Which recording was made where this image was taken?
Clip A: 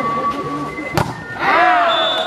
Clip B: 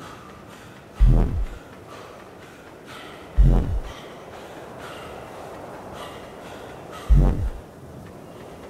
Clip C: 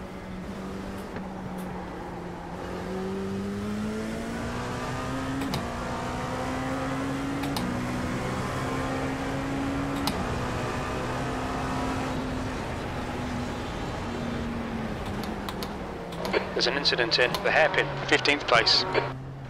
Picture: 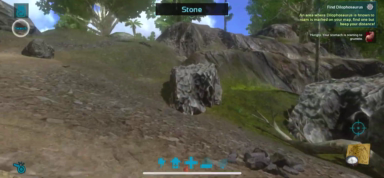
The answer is B